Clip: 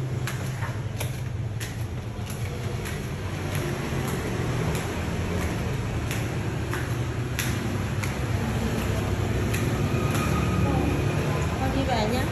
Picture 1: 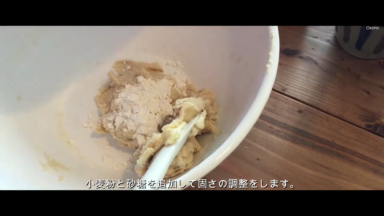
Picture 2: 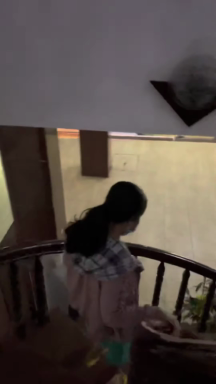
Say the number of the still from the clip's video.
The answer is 2